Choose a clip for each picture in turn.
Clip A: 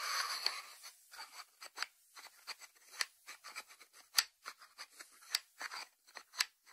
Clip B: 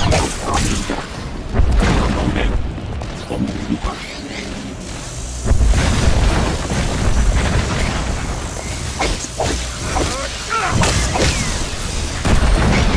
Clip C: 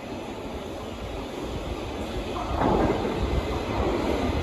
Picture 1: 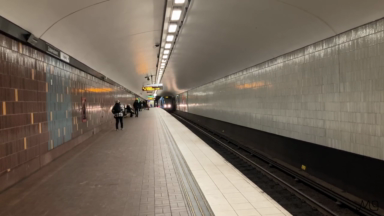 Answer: C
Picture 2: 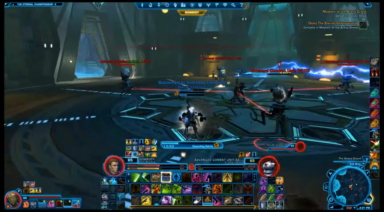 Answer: B